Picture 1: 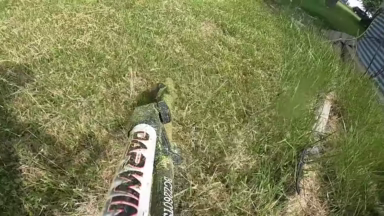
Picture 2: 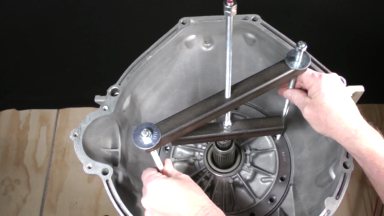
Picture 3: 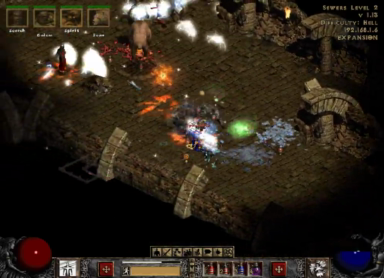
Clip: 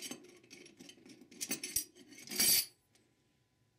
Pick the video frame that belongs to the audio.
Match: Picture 2